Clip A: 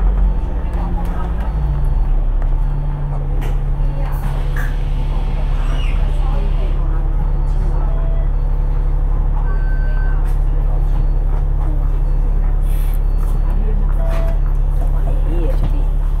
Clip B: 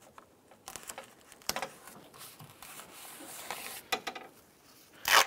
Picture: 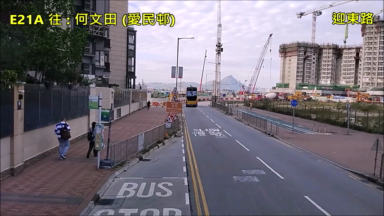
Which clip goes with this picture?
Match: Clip A